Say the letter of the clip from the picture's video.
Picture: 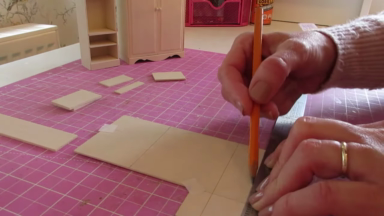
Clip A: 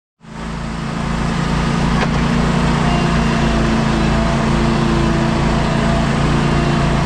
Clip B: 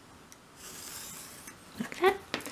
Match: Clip B